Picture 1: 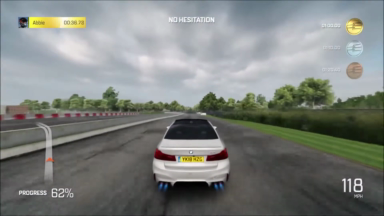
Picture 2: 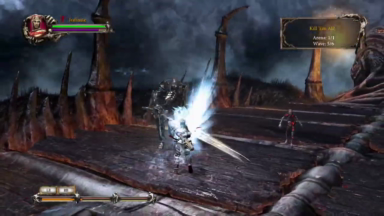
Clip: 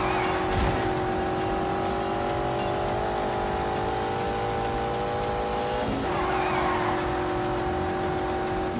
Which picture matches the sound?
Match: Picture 1